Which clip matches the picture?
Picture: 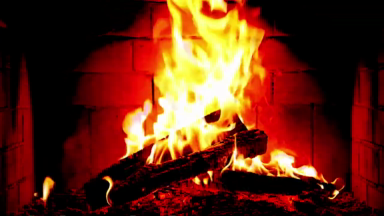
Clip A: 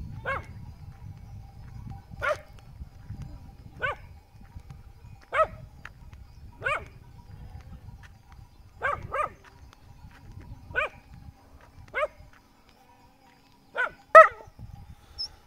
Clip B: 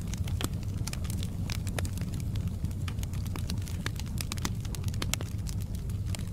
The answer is B